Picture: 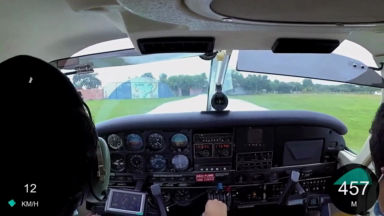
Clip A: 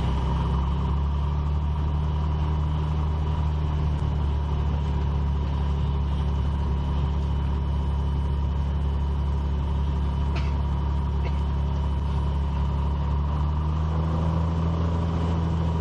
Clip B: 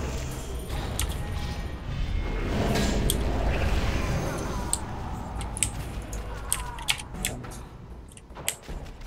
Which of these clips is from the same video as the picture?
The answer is A